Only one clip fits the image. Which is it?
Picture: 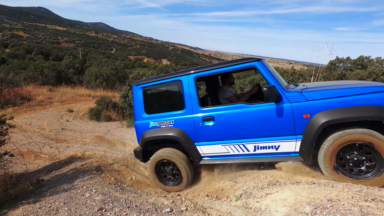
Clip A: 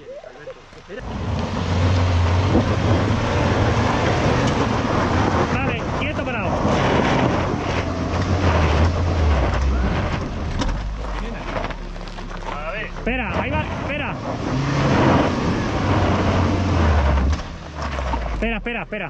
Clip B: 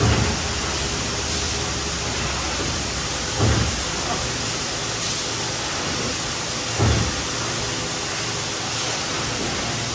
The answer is A